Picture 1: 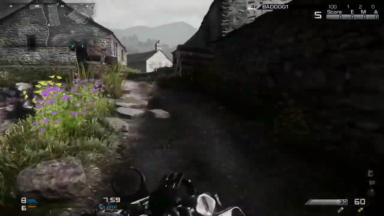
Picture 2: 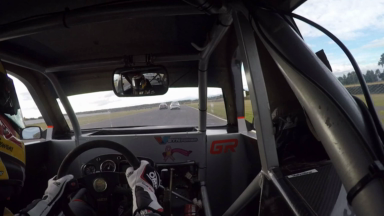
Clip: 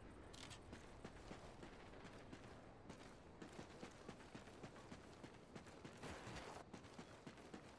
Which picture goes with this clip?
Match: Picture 1